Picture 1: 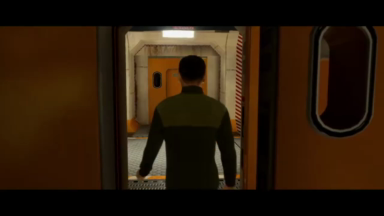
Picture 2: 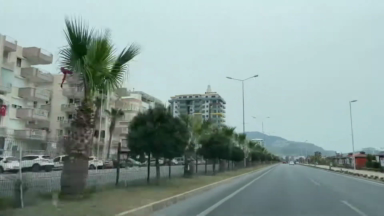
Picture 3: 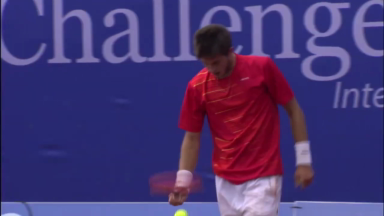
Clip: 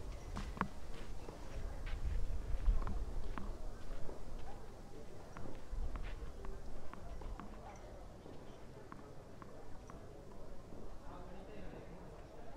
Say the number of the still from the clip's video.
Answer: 3